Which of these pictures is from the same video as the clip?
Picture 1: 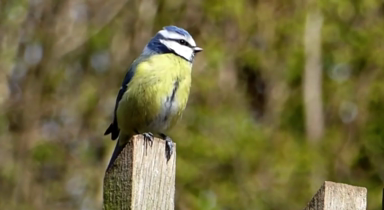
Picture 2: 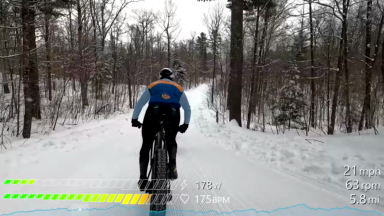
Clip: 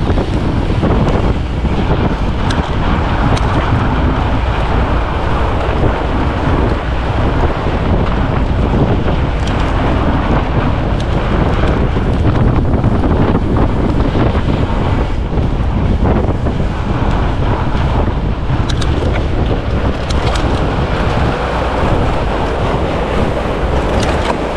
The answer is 2